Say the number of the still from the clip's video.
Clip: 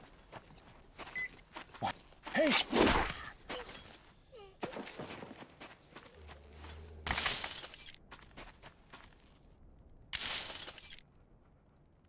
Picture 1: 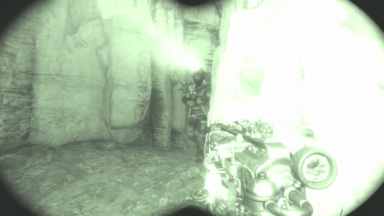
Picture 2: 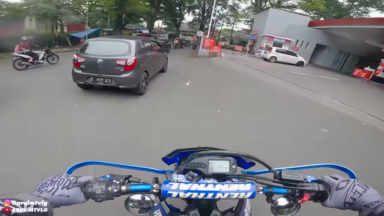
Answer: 1